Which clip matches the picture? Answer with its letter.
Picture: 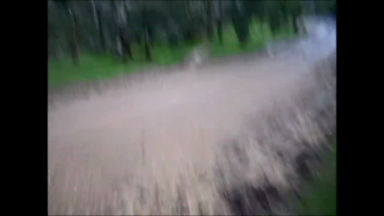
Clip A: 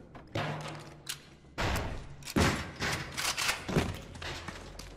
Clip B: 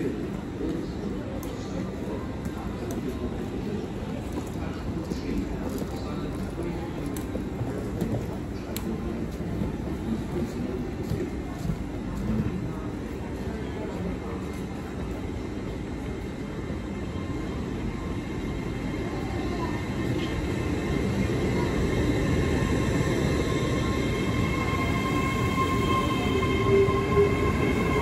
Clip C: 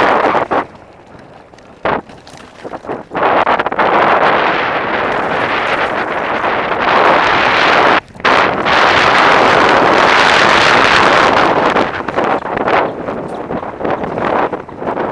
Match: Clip C